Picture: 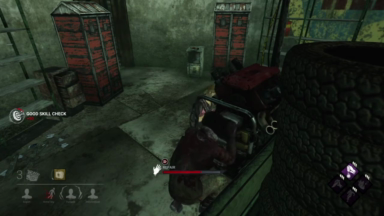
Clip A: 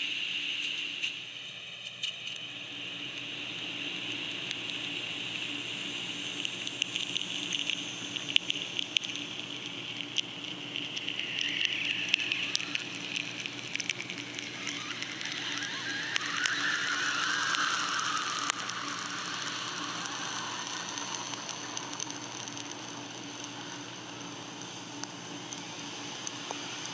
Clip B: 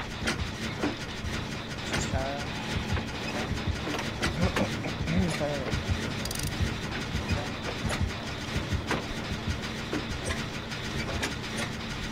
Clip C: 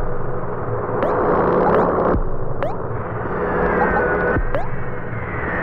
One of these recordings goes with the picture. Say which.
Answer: B